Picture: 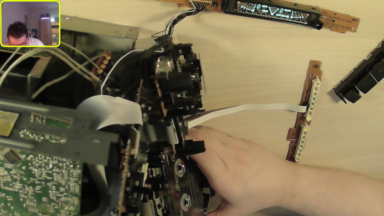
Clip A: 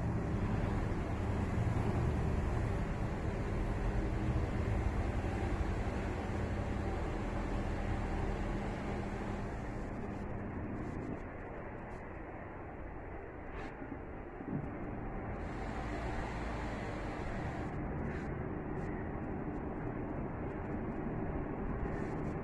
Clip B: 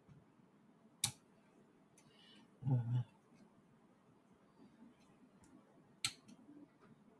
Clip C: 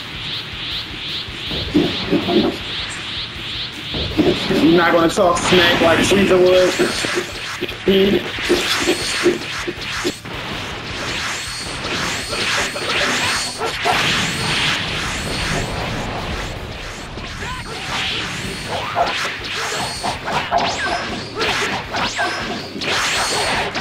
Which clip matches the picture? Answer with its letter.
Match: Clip B